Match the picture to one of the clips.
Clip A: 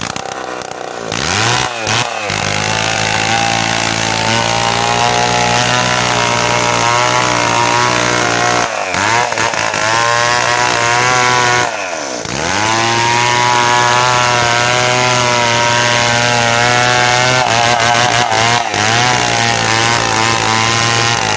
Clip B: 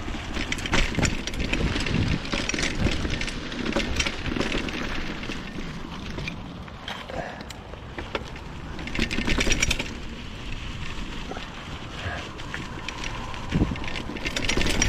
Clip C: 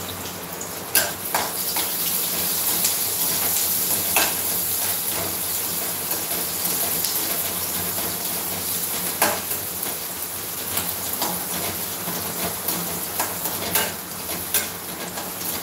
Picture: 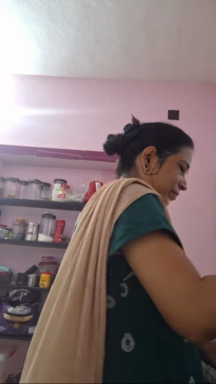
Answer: C